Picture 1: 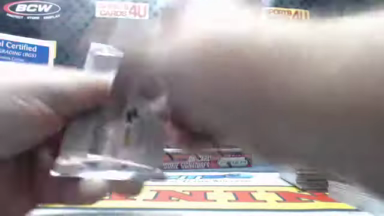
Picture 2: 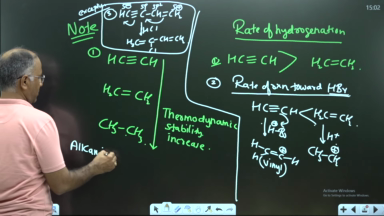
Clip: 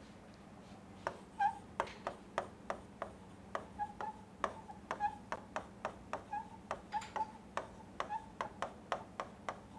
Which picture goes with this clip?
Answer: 2